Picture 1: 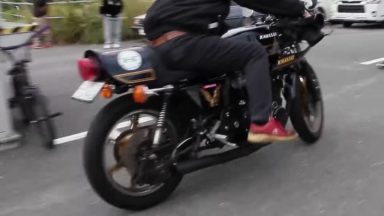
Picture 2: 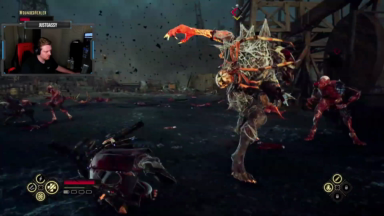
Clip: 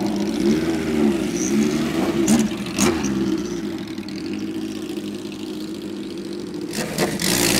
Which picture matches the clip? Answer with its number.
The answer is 1